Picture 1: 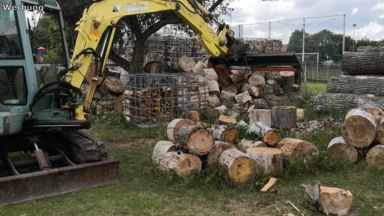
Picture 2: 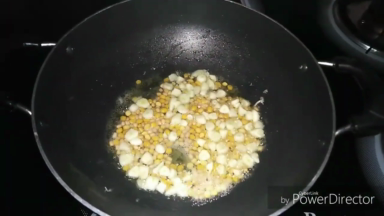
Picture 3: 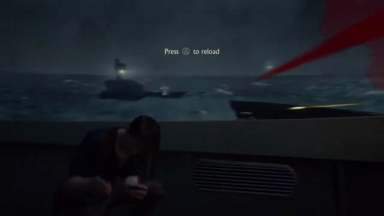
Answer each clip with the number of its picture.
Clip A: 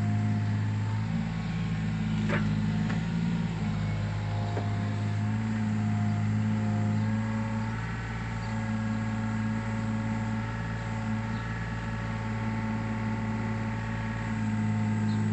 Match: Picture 1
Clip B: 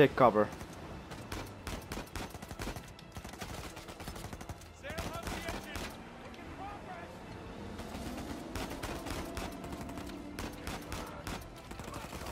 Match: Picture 3